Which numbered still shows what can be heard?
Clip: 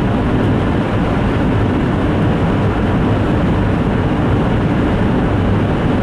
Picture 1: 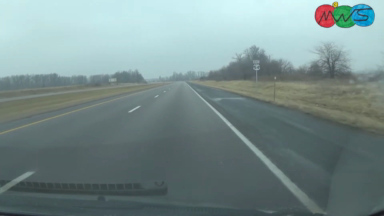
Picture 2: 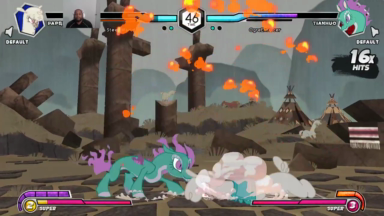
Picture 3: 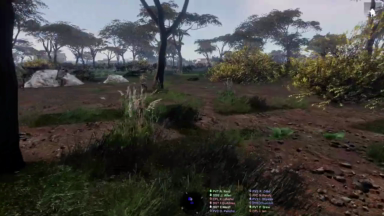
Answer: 1